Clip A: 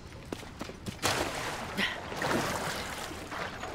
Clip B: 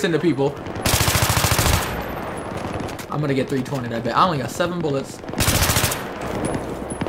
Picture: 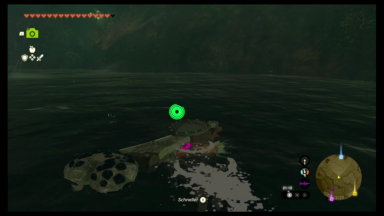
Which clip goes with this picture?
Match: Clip A